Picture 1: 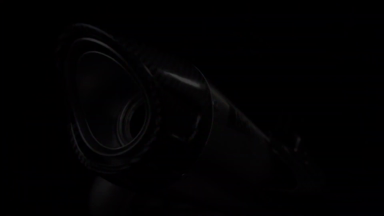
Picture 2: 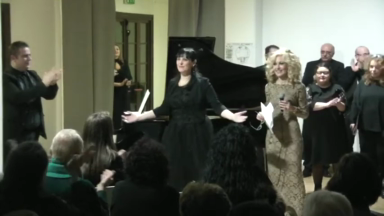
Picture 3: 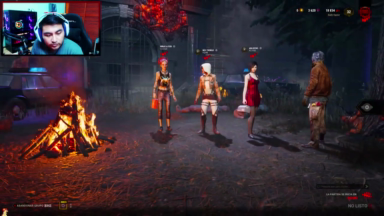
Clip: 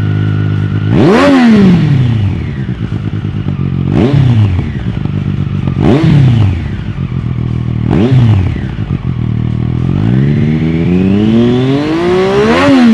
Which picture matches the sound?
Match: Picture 1